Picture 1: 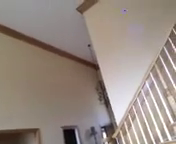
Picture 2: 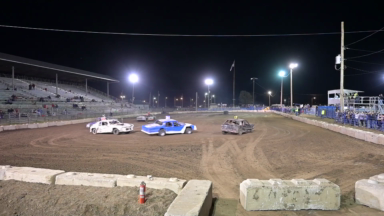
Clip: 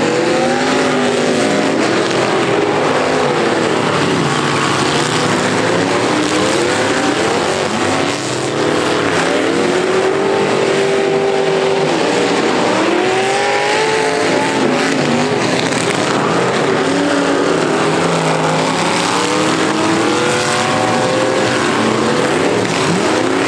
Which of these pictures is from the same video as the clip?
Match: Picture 2